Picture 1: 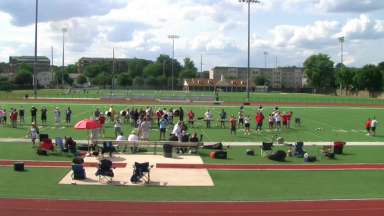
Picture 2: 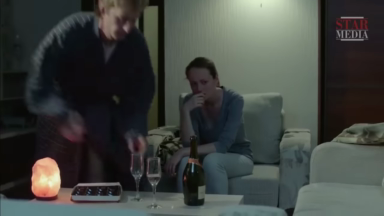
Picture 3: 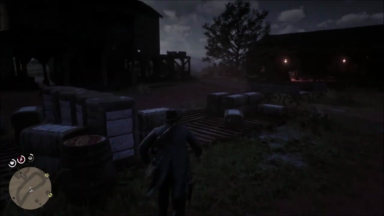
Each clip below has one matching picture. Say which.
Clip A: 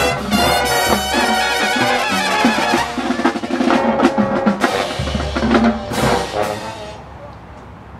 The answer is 1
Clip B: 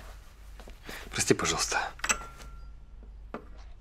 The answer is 2